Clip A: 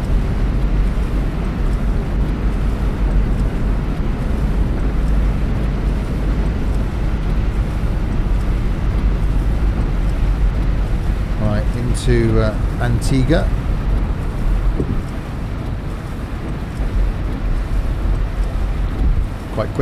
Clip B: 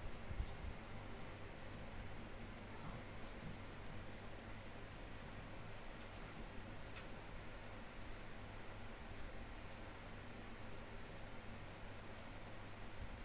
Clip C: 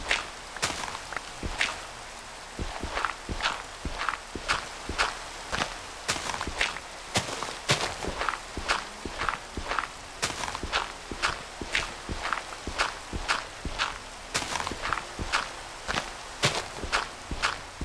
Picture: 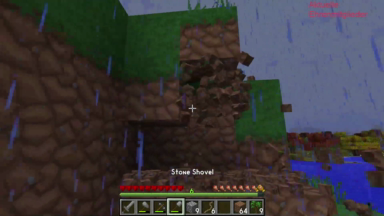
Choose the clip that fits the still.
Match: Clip C